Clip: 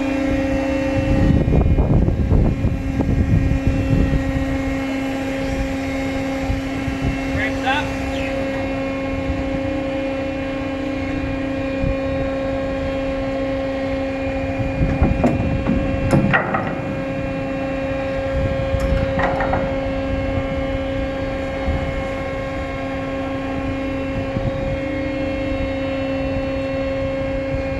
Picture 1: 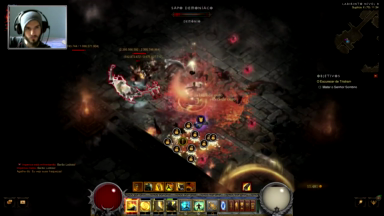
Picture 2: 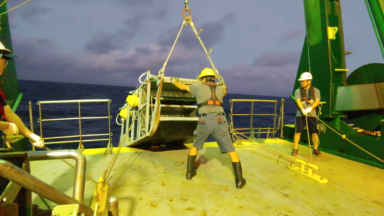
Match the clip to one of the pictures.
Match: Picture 2